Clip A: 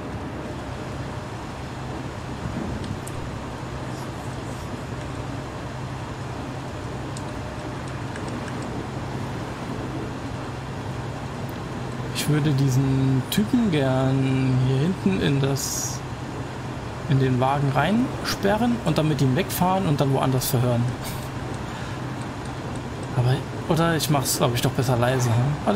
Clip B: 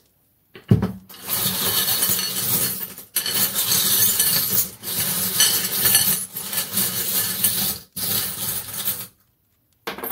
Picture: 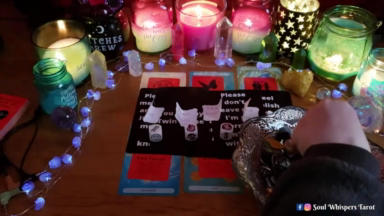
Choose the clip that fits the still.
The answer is B